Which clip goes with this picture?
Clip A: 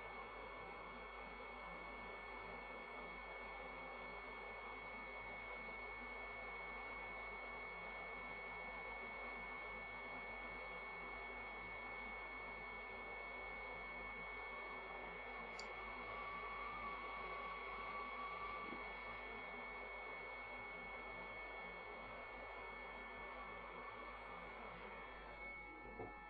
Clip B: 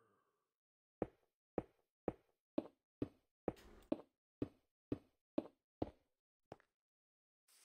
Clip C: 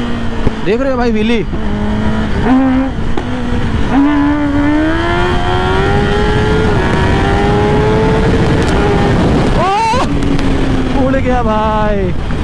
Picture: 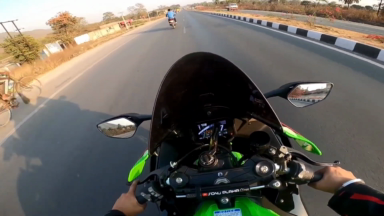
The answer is C